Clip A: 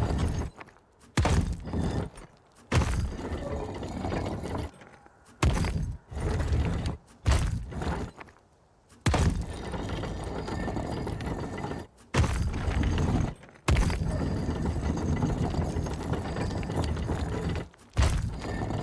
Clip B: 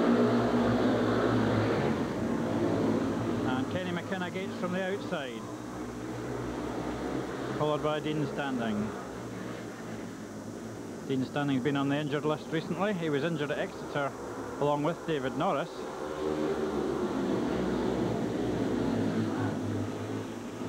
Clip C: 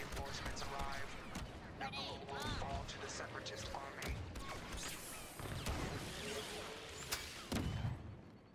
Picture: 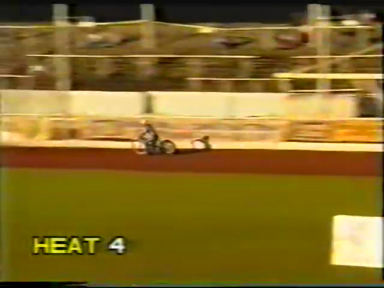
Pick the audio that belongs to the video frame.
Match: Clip B